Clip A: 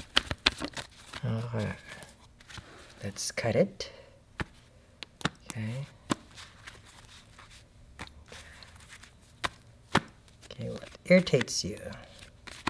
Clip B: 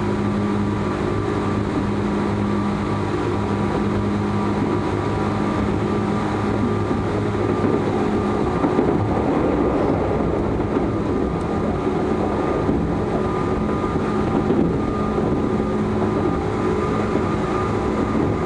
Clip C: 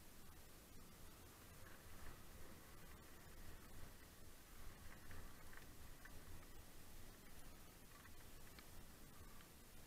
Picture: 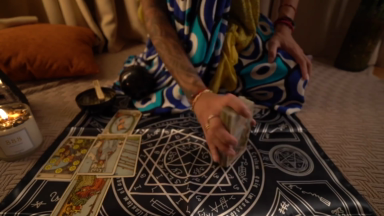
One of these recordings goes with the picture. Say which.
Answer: A